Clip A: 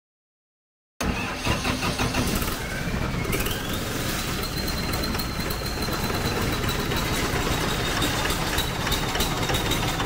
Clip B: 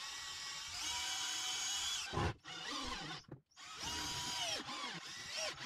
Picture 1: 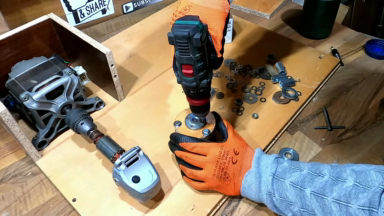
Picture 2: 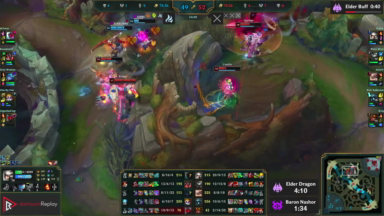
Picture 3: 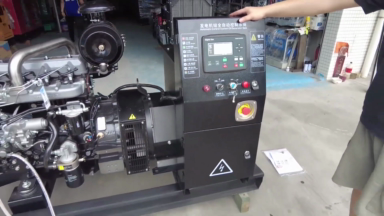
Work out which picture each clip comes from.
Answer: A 3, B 1